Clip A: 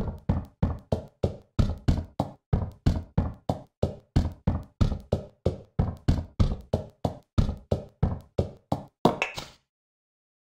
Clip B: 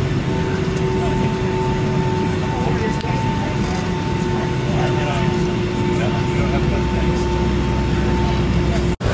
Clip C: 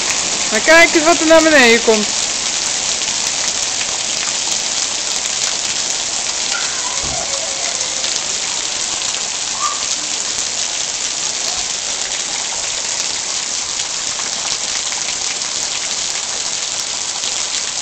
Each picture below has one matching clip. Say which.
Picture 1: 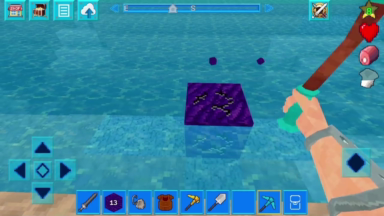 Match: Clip A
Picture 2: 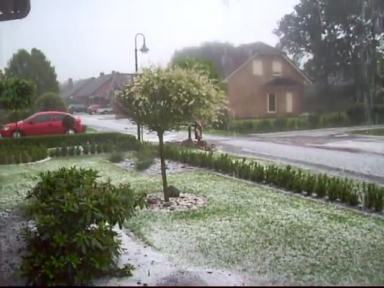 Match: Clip C